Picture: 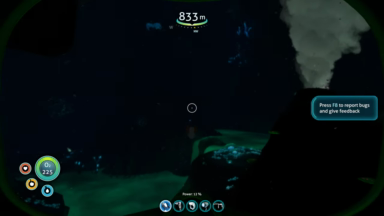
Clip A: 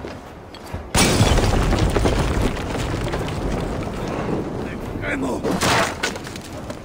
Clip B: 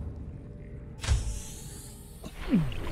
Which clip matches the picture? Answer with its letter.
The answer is B